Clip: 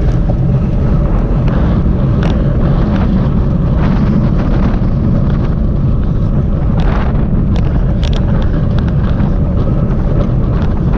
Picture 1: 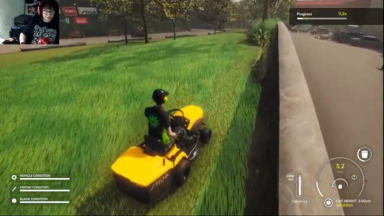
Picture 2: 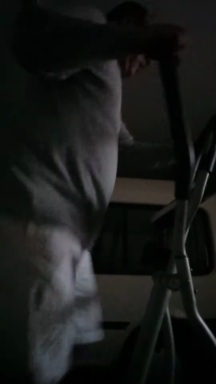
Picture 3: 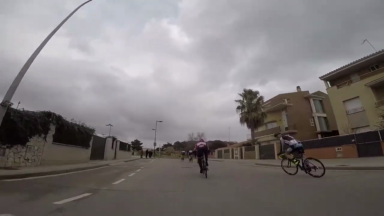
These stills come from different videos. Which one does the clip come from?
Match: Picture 3